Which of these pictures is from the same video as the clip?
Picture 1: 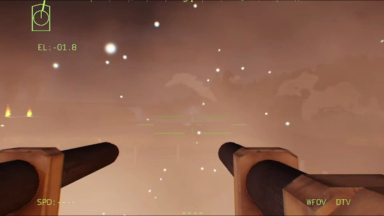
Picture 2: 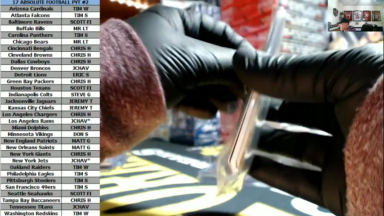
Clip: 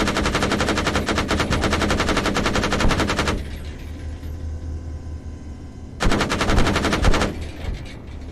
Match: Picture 1